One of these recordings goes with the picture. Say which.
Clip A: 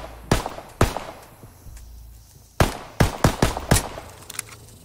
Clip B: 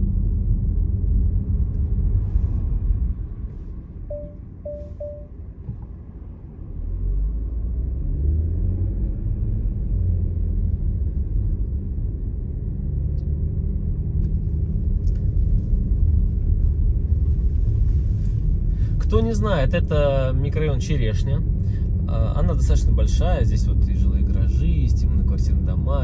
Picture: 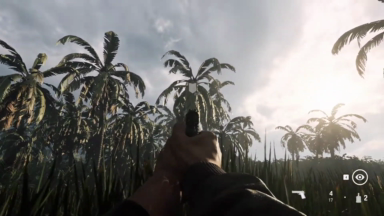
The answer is A